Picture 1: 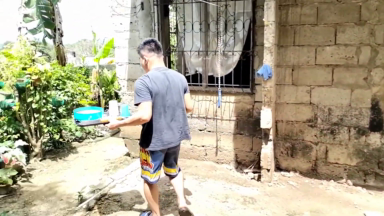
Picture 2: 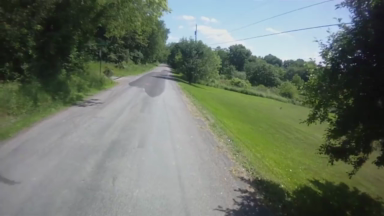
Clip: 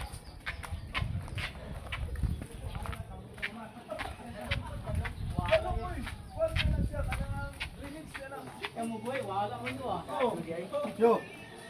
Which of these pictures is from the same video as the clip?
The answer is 1